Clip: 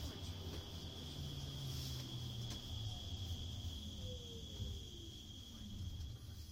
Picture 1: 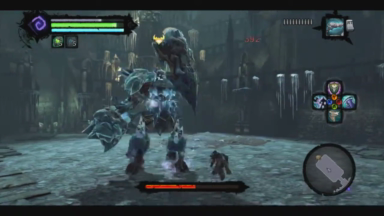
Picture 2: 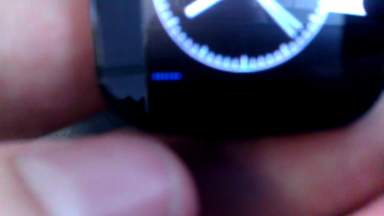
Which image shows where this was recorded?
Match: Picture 2